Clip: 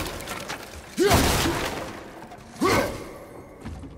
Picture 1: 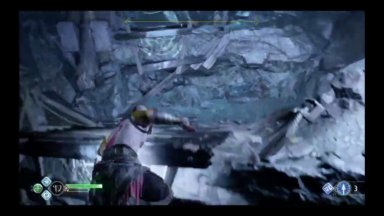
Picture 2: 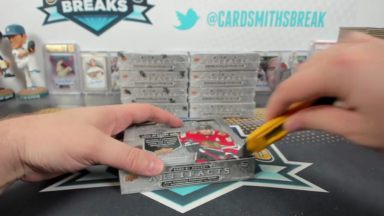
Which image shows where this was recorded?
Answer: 1